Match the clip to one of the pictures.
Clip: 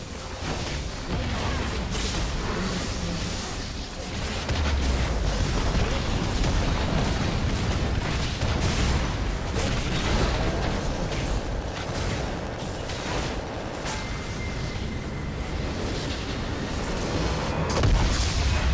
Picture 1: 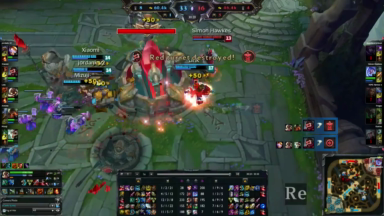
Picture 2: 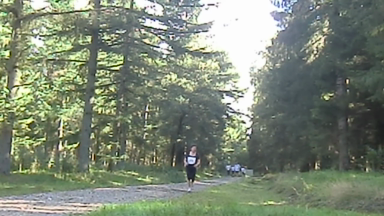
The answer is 1